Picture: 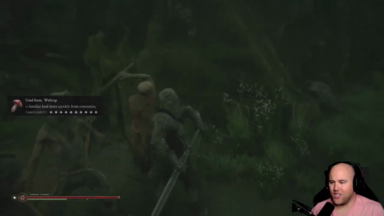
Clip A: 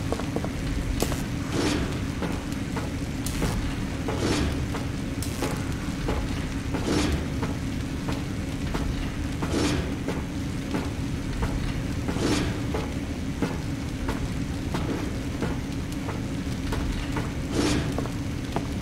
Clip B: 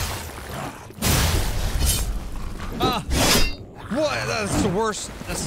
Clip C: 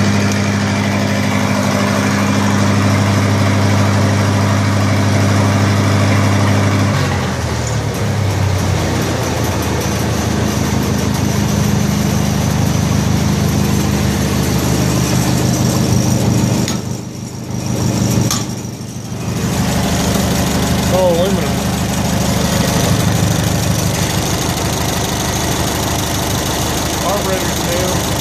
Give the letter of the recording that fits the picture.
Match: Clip B